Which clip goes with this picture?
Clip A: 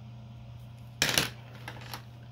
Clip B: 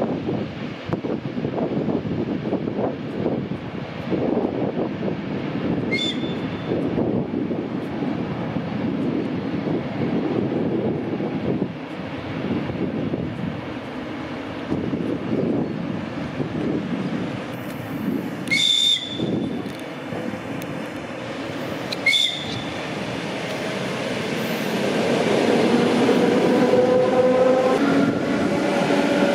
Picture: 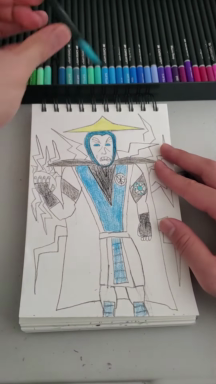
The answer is A